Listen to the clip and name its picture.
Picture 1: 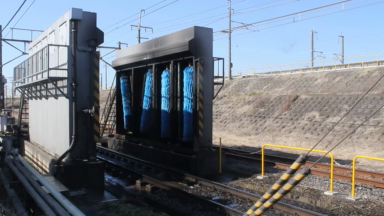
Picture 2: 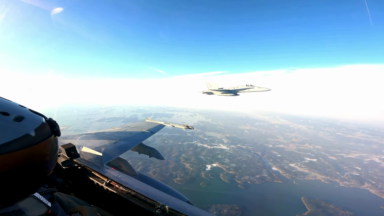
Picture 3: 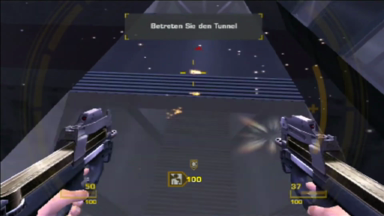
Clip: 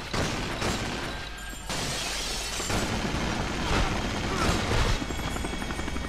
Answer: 3